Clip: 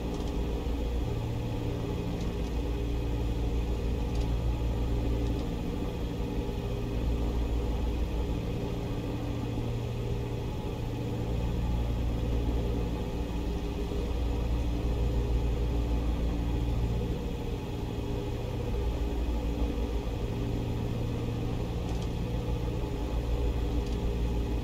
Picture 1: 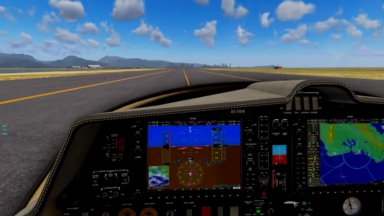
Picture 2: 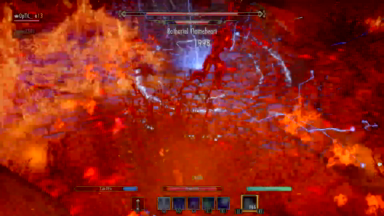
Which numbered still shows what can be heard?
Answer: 1